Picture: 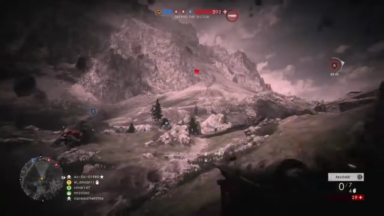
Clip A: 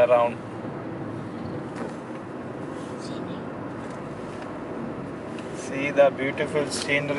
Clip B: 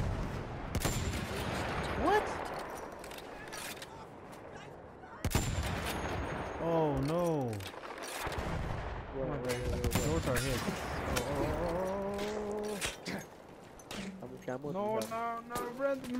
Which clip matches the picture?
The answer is B